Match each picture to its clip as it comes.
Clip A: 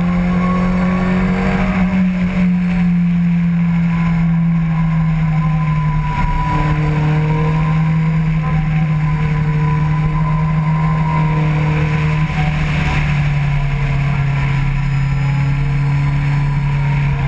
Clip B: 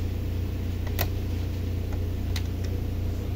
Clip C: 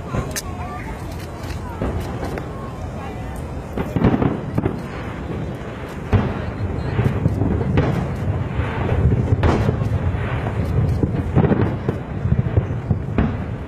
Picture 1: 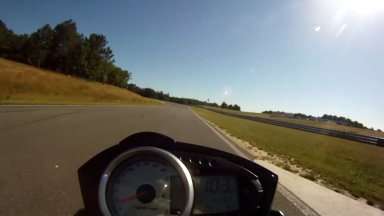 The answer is A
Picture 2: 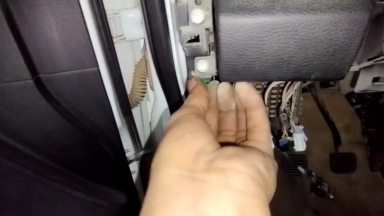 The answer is B